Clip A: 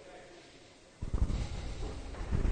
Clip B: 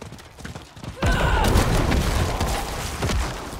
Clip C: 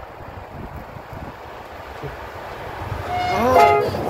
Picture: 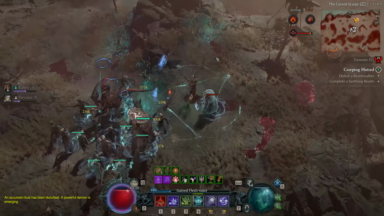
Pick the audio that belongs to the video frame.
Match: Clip B